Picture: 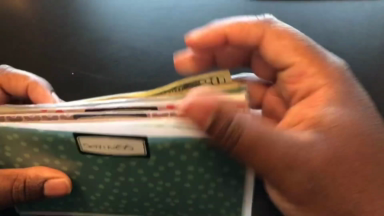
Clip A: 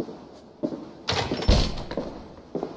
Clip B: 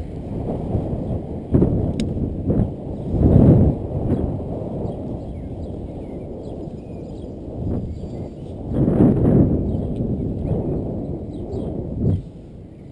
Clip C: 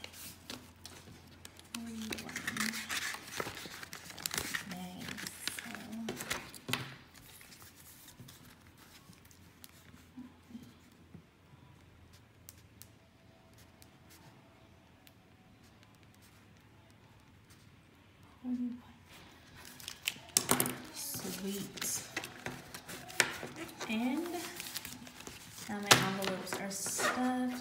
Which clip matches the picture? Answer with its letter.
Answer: C